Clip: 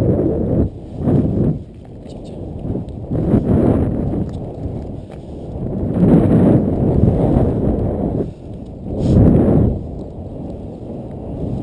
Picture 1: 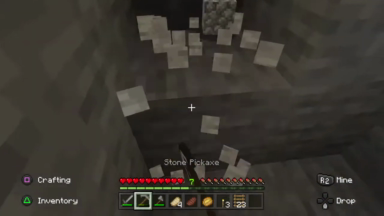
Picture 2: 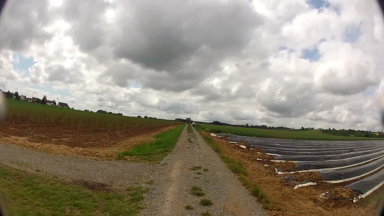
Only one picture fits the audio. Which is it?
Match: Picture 2